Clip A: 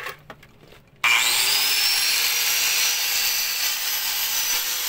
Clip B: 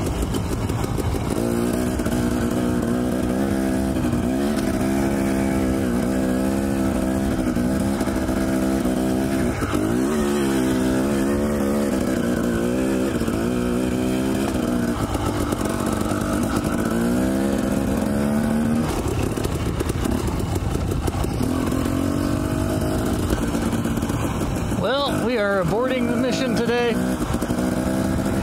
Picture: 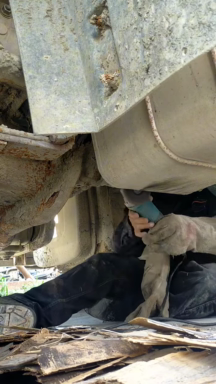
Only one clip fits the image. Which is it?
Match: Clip A